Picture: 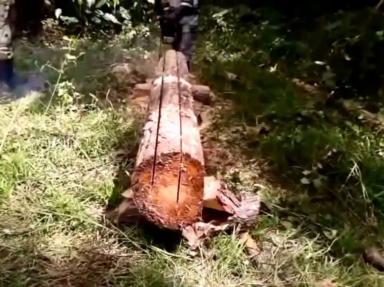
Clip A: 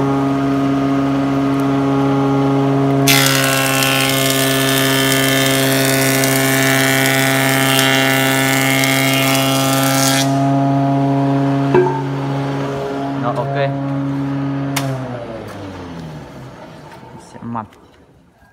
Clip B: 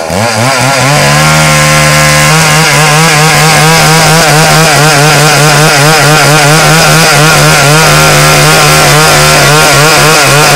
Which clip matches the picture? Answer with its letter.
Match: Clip B